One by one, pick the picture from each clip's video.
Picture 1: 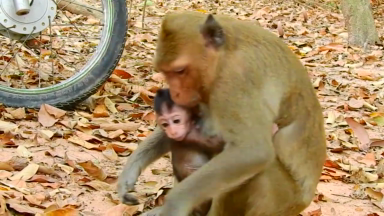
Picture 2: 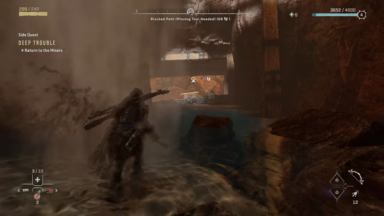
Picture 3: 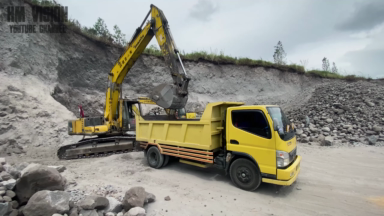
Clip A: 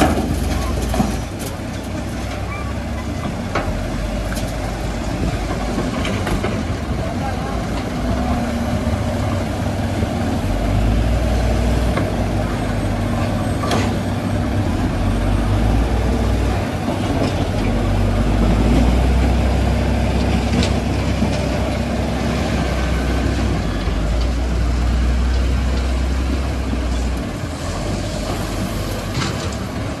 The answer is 3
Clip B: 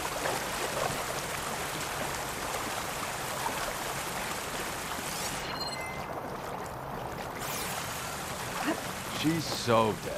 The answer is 2